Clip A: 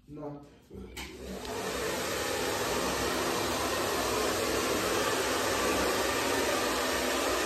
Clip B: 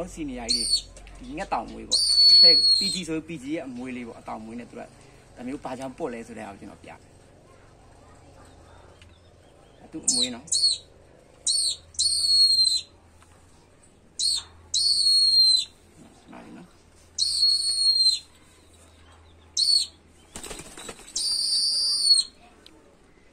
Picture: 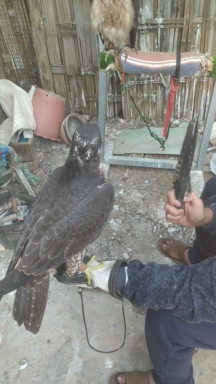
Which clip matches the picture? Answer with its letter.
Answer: B